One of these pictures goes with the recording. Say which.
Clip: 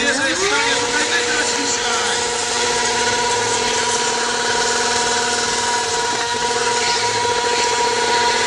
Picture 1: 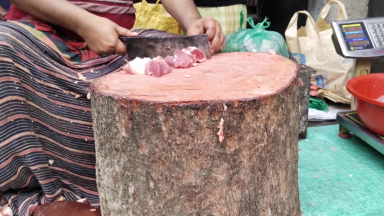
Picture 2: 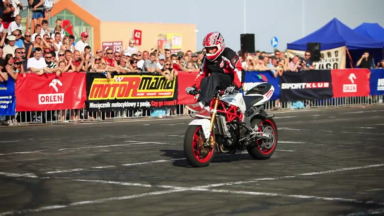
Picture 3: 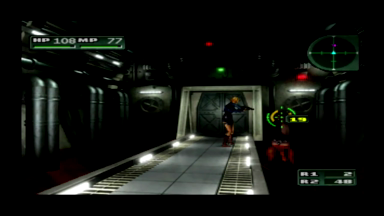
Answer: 2